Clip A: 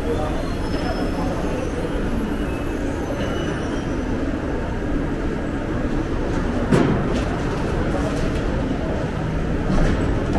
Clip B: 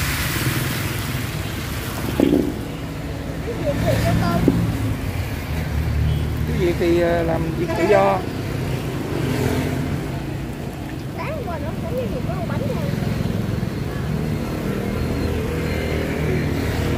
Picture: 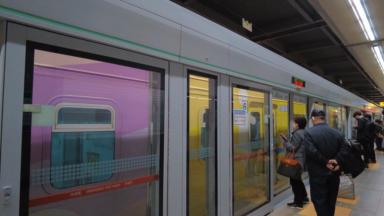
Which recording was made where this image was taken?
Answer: A